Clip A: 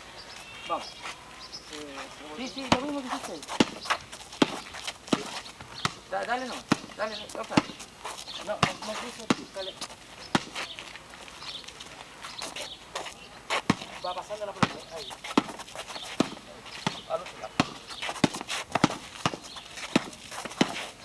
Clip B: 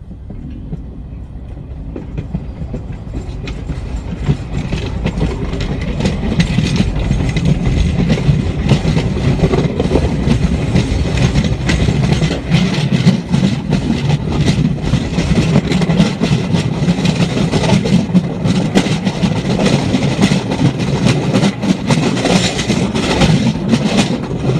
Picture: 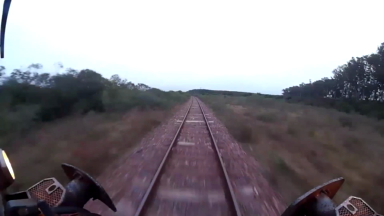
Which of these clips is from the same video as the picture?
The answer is B